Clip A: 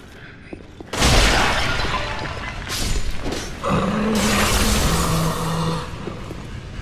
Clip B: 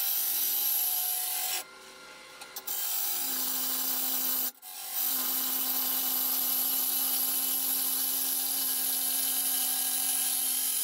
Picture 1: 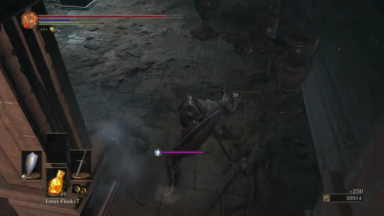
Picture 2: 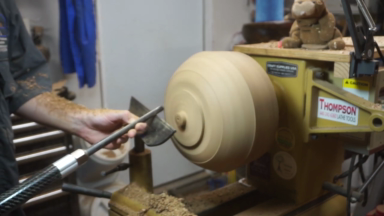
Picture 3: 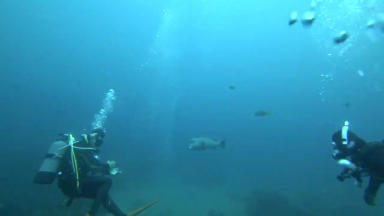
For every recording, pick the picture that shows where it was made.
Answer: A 1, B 2